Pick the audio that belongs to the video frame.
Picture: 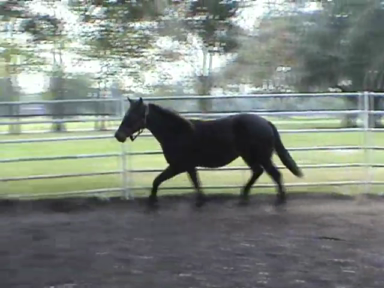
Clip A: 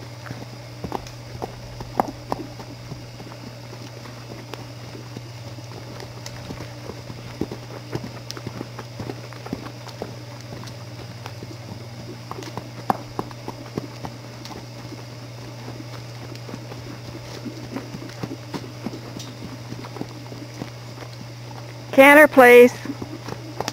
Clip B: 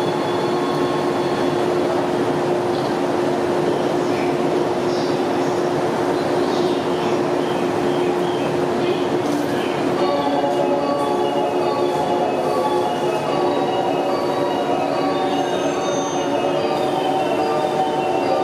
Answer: A